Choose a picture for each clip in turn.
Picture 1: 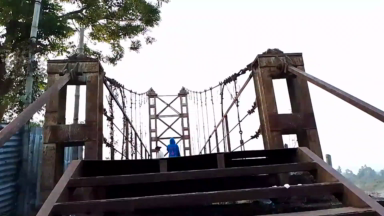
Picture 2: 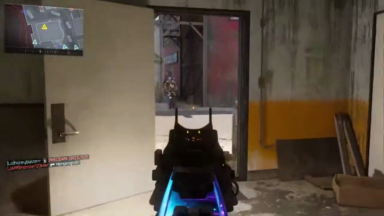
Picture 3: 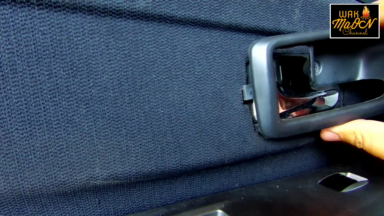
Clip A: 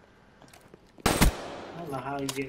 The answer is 2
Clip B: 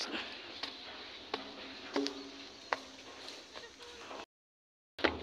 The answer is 1